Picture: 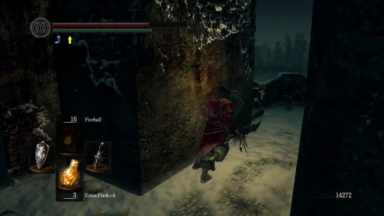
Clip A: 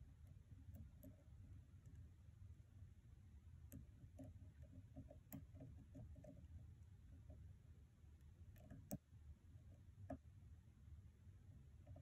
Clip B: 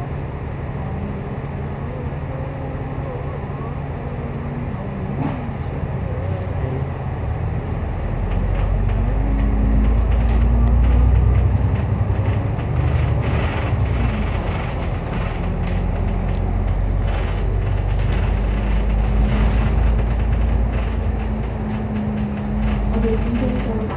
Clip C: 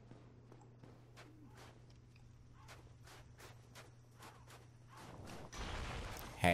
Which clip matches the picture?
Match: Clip C